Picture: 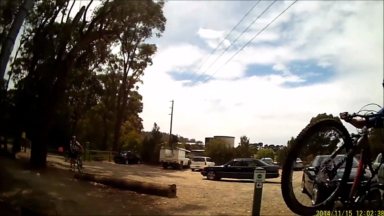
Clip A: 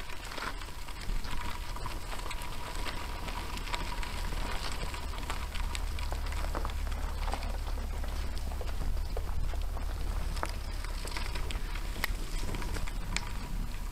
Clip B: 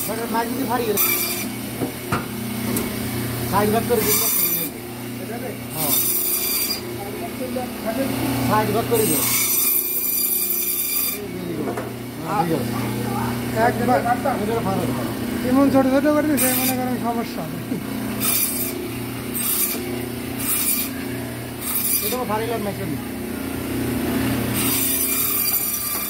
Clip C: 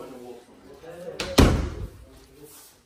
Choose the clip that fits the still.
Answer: A